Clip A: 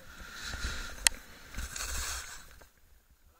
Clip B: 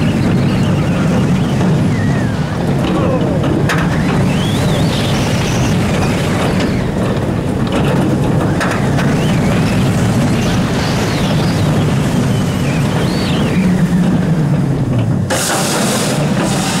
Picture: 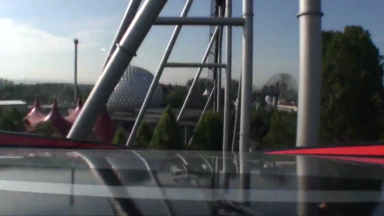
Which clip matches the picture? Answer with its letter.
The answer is B